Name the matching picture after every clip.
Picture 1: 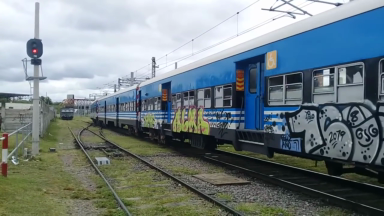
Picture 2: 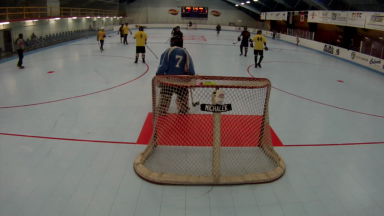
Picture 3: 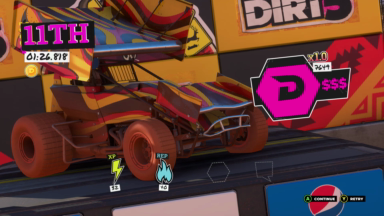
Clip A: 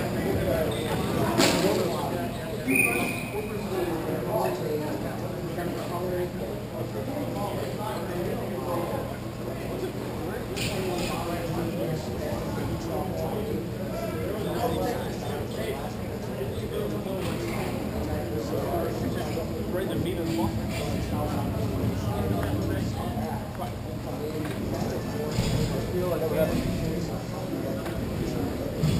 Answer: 2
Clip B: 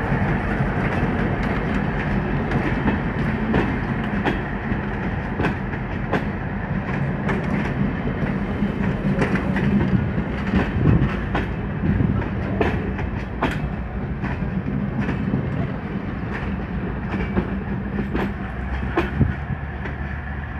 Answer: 1